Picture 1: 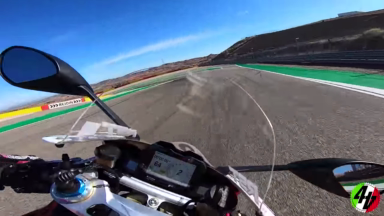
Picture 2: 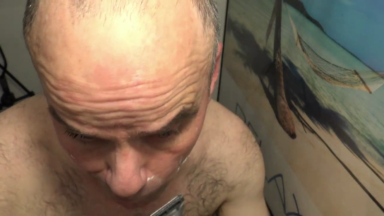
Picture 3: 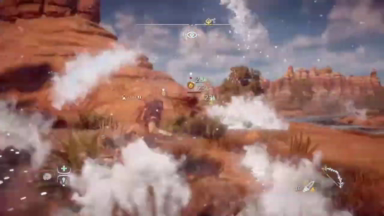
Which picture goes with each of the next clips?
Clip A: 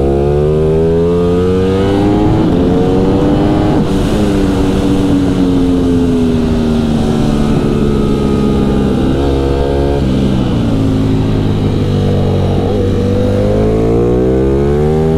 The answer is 1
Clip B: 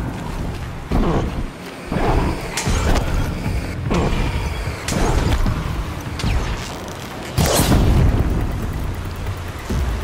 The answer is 3